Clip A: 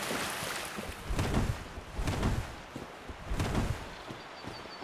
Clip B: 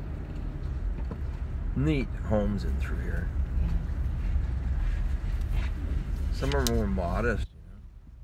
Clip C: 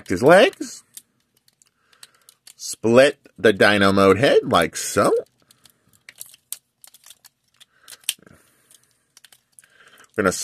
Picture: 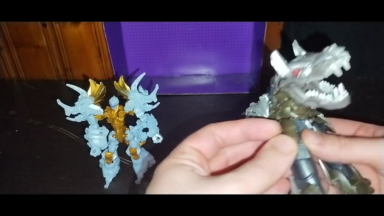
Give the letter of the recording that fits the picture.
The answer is C